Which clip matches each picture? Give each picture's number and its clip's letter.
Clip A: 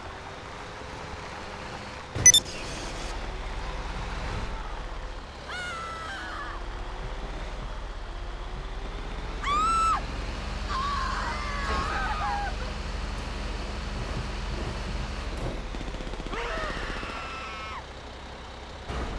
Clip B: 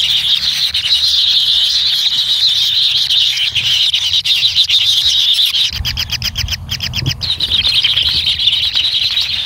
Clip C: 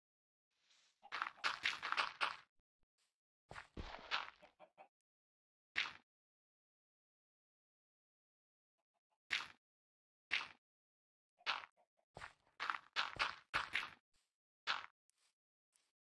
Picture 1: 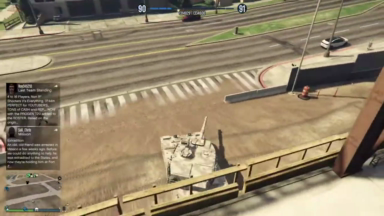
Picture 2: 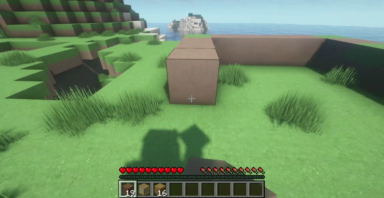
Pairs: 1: A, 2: C